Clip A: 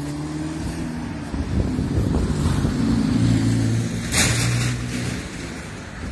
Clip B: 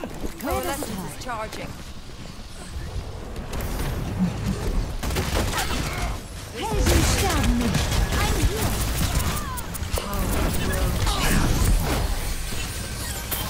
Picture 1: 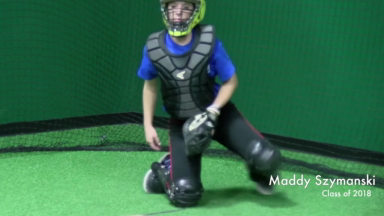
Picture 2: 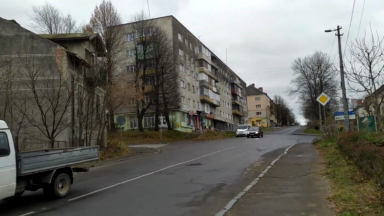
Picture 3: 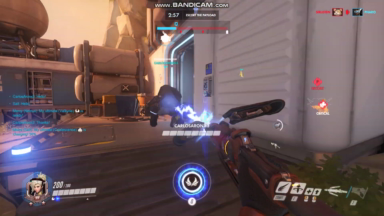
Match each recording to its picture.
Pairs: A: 2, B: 3